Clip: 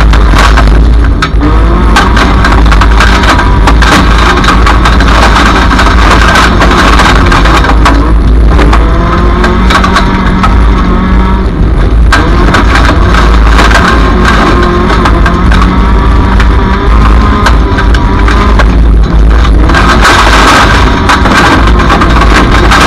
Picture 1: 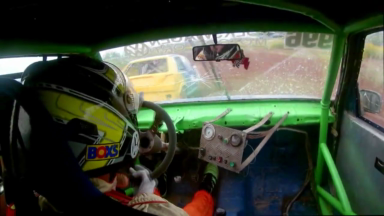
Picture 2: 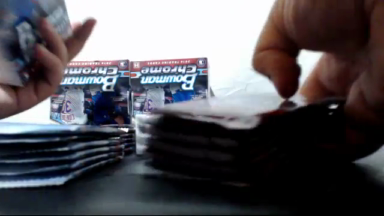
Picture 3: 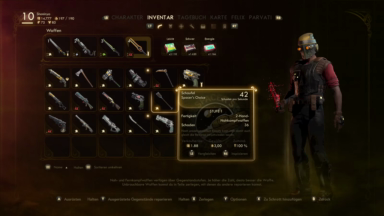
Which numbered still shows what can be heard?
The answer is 1